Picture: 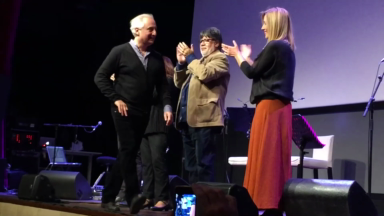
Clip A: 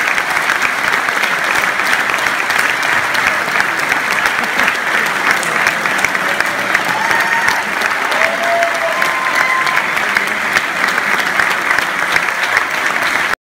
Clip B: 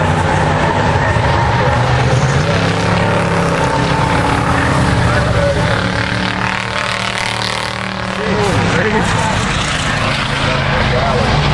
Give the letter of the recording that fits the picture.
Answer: A